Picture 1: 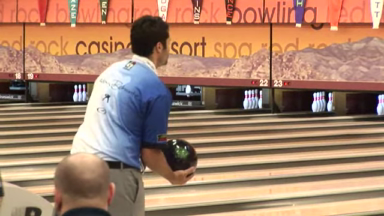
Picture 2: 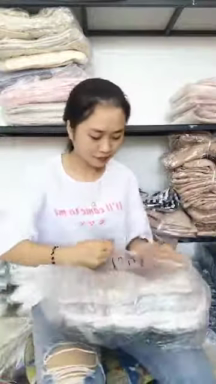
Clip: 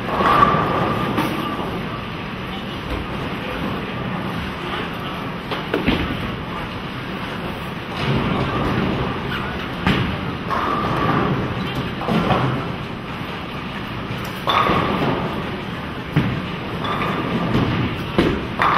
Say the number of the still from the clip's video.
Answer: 1